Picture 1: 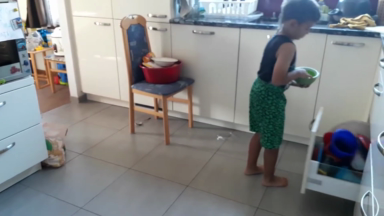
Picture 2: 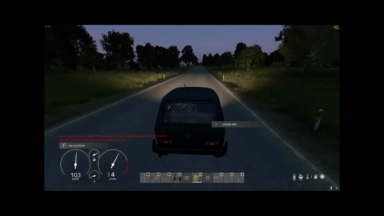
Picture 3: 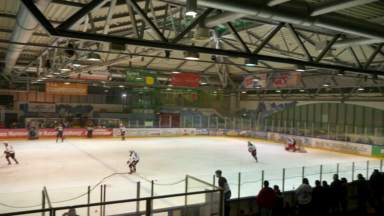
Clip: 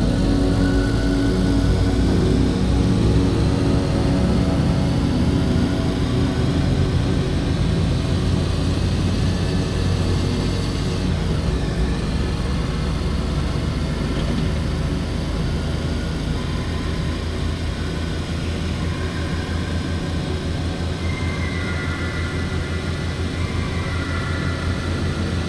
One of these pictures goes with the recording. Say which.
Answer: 2